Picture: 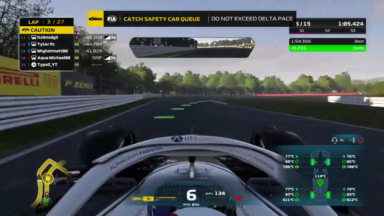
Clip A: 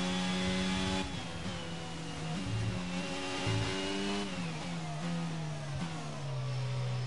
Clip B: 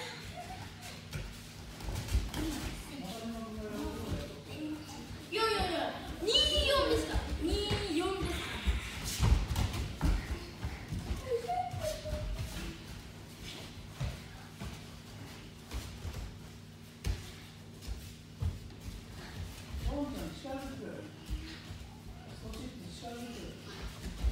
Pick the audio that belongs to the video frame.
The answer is A